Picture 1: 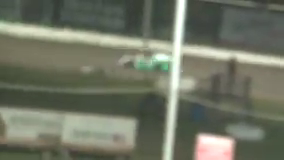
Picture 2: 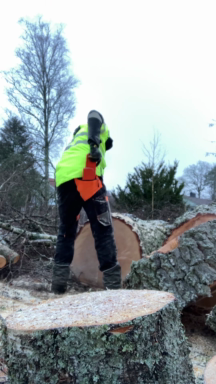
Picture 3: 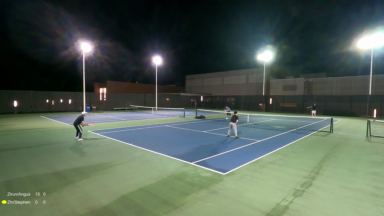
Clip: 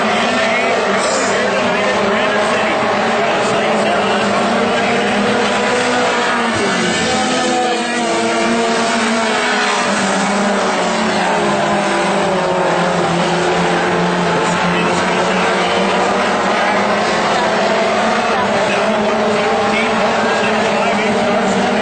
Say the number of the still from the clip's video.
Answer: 1